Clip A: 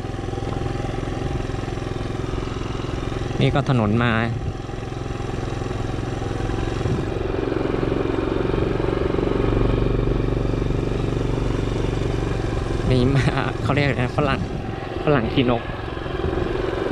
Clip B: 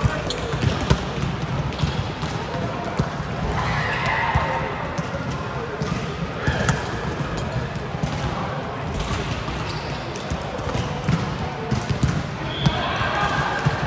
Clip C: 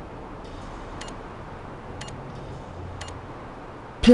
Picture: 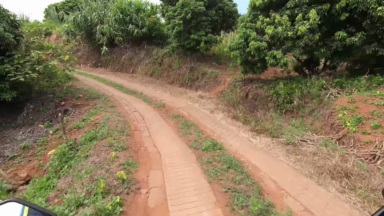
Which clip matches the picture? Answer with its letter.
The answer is A